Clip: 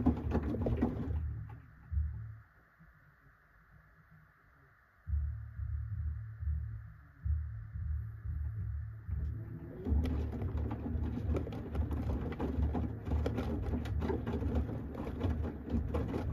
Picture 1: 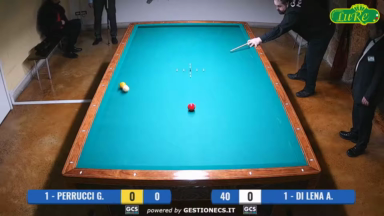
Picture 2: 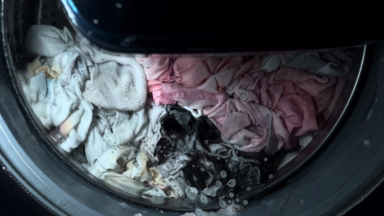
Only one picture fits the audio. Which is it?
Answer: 2